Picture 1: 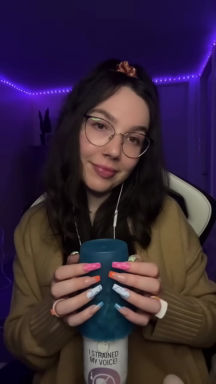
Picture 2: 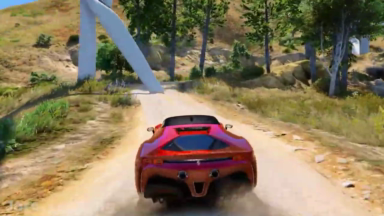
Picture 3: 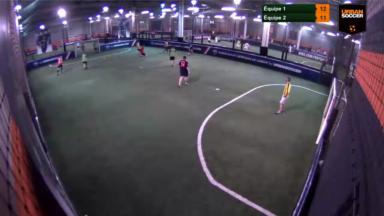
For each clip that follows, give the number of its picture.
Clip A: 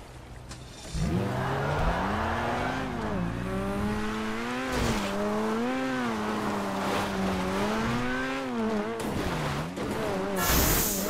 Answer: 2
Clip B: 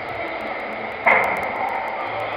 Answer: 3